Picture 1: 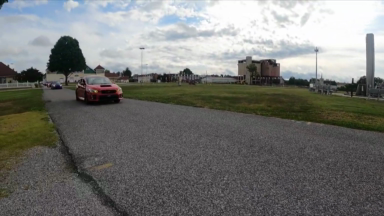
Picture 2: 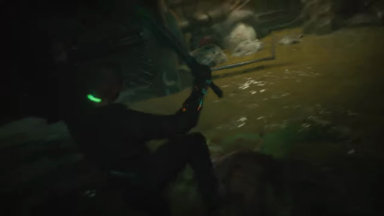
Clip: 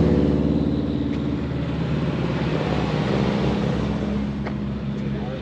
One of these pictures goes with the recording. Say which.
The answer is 1